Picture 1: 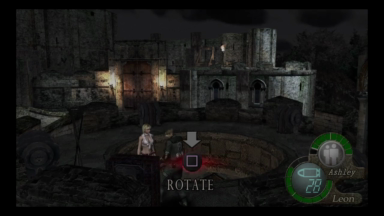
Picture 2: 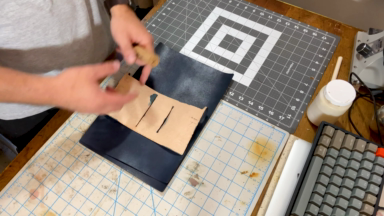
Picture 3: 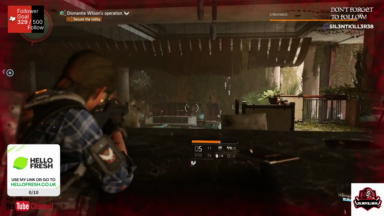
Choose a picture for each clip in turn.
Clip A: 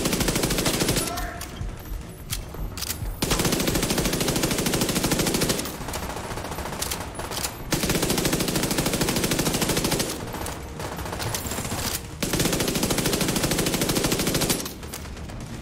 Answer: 3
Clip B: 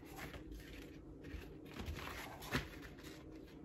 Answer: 2